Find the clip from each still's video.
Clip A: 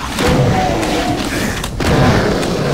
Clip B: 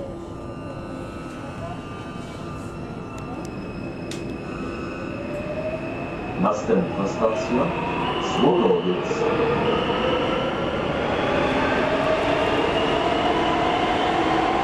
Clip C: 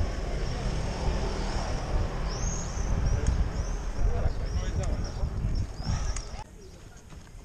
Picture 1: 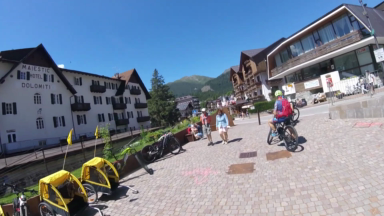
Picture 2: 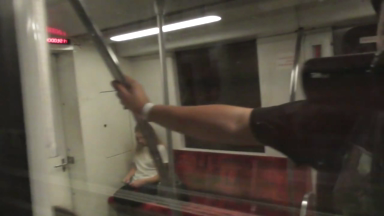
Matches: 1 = C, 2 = B